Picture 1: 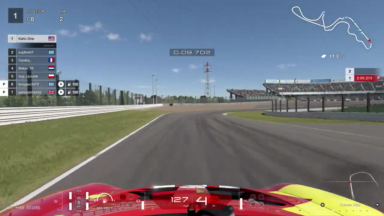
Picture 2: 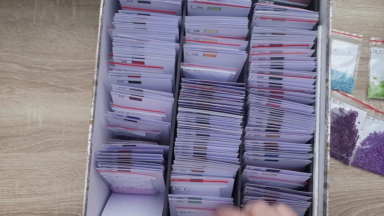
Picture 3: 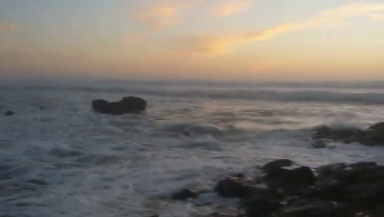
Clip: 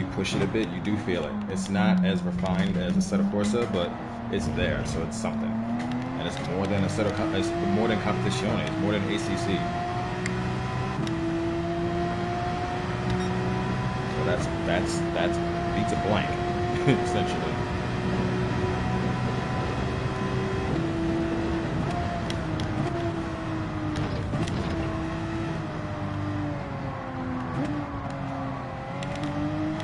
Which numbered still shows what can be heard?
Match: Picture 1